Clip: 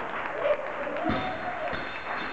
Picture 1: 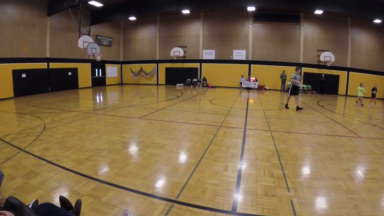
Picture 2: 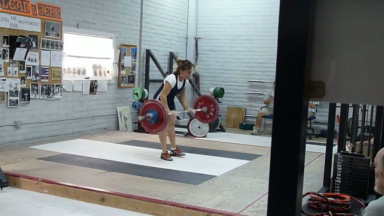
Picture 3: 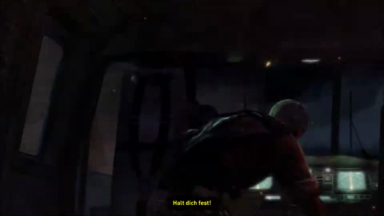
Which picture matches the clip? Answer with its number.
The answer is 2